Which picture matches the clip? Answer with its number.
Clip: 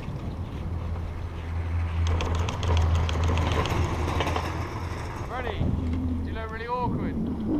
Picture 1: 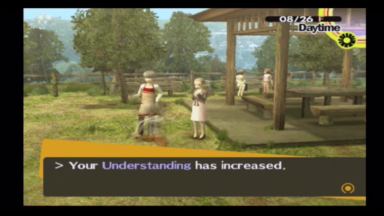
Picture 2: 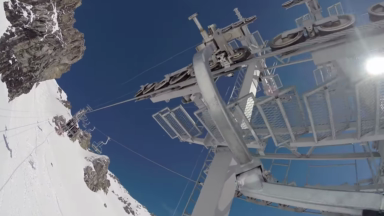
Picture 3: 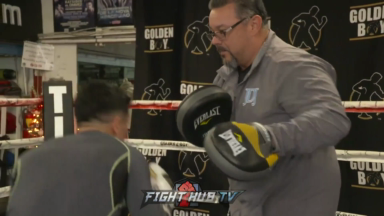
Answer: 2